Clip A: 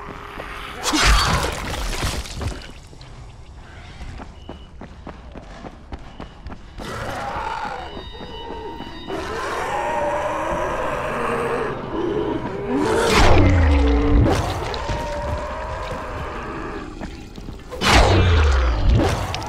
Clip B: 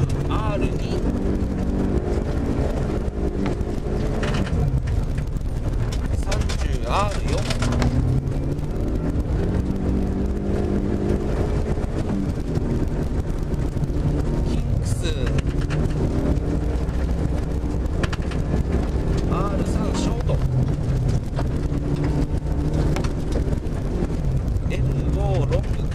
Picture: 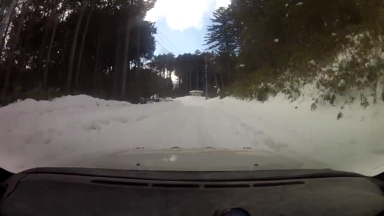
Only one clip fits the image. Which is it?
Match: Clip B